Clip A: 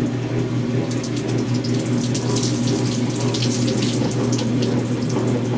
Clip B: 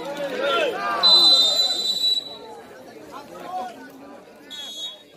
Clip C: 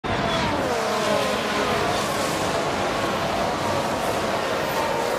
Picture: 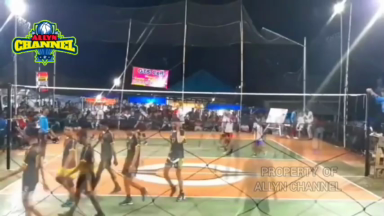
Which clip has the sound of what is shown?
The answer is B